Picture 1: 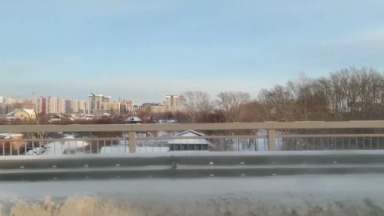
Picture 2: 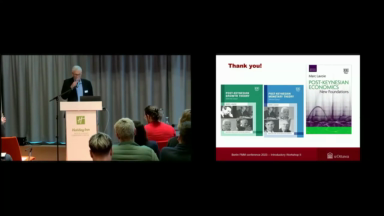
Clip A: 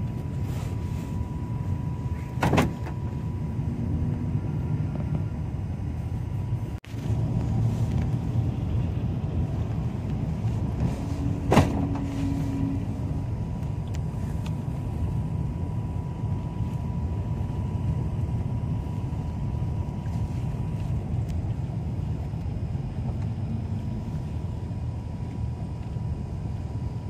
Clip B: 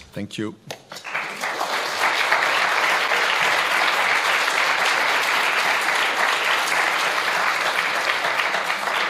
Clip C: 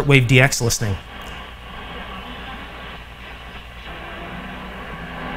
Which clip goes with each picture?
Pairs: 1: A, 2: B